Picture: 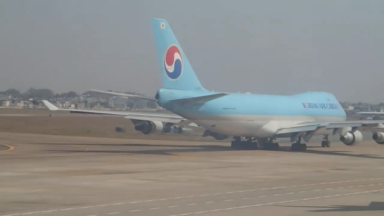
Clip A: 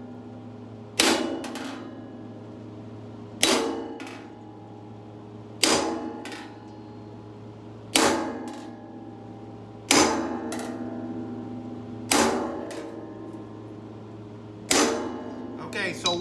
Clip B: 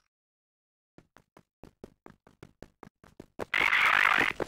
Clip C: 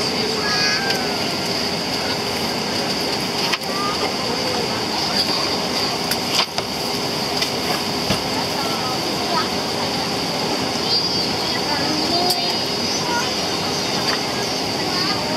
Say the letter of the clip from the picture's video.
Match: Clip C